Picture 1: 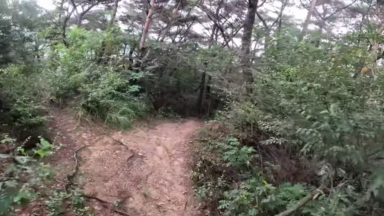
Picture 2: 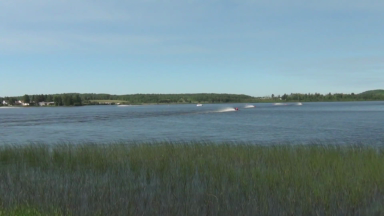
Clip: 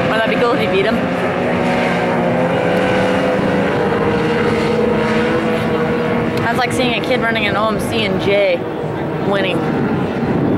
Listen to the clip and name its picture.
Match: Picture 2